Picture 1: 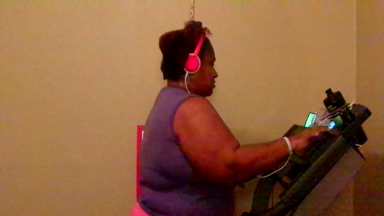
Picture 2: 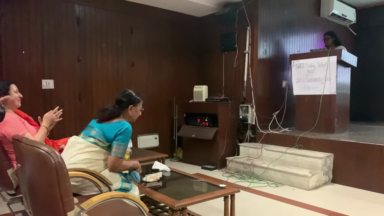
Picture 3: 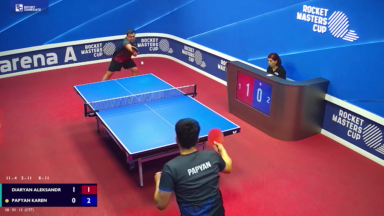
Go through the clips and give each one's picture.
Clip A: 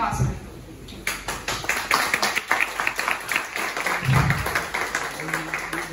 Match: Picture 2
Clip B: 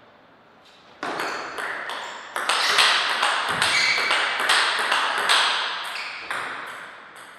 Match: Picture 3